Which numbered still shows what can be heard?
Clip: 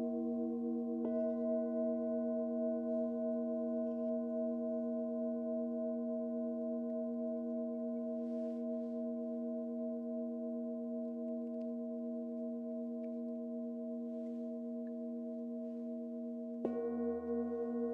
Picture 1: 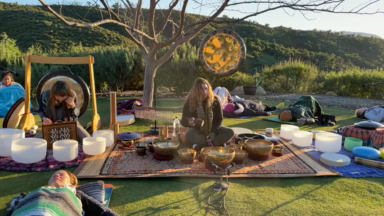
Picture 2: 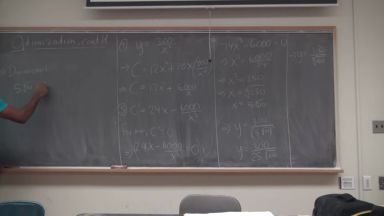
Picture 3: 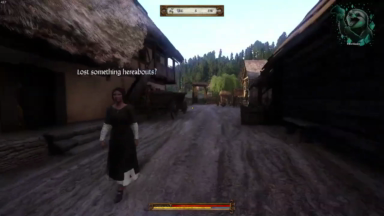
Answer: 1